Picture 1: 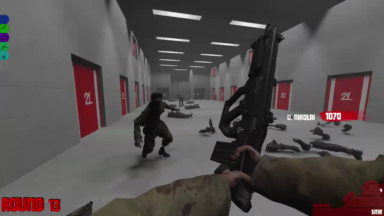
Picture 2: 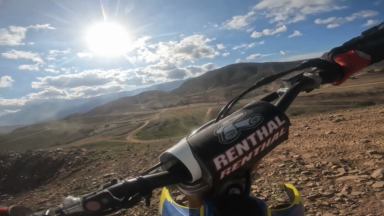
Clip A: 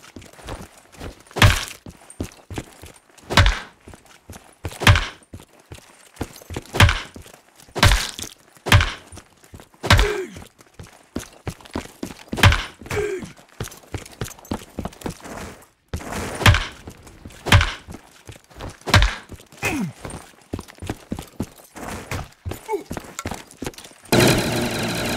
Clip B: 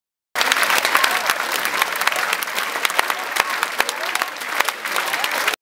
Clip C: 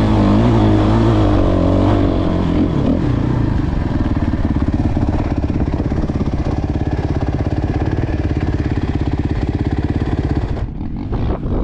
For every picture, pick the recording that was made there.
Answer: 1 A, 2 C